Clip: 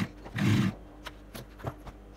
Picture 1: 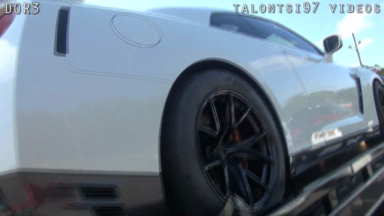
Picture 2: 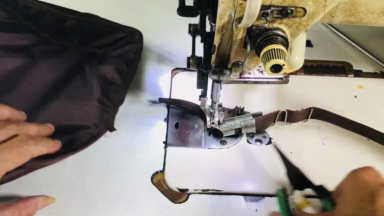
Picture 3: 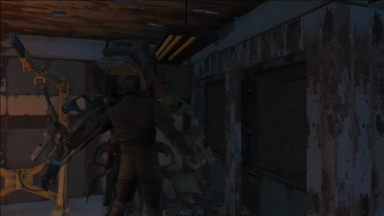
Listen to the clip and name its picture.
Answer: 2